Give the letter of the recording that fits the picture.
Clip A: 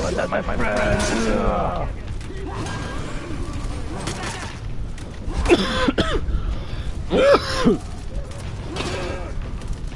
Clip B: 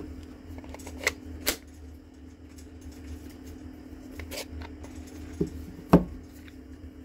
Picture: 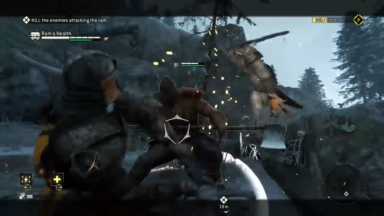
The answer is A